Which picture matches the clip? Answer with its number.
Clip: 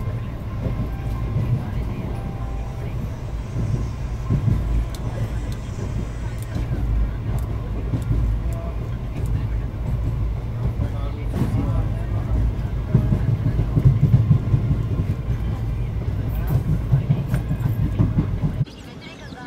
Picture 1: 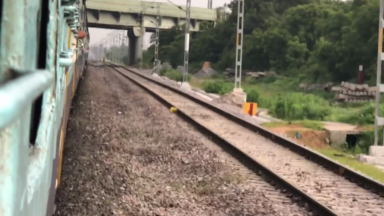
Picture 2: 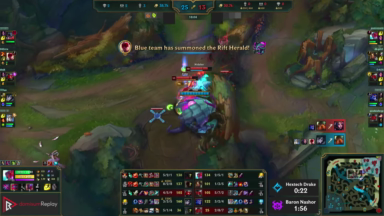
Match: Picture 1